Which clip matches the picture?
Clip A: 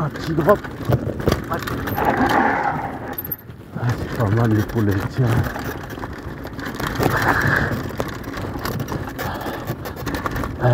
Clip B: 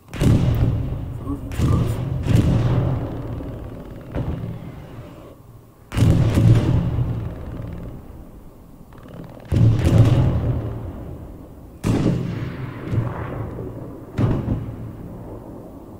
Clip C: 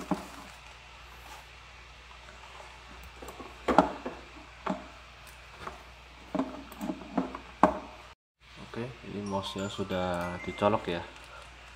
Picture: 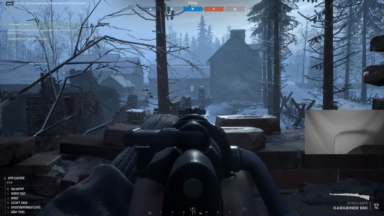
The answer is B